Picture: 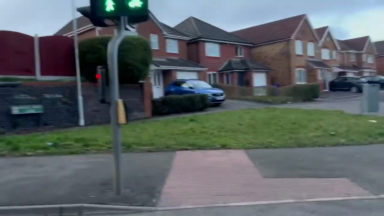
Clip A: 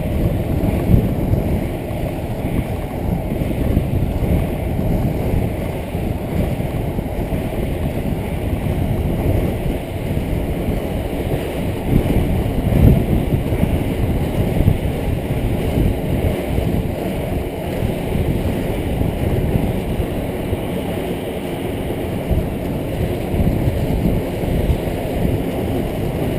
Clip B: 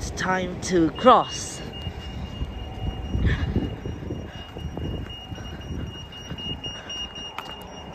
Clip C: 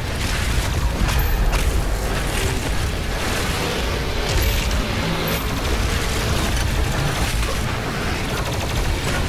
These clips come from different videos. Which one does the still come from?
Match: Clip B